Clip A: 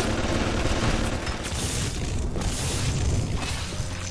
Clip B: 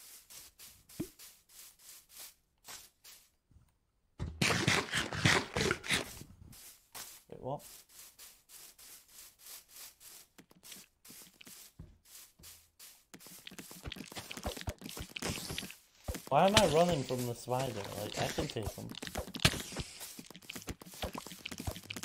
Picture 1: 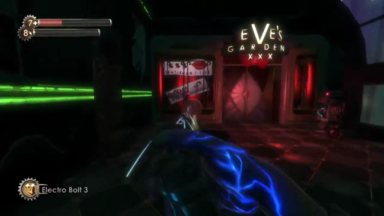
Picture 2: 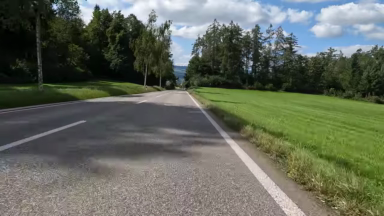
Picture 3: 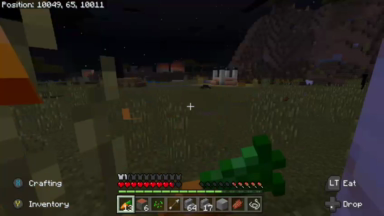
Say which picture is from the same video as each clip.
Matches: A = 1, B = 3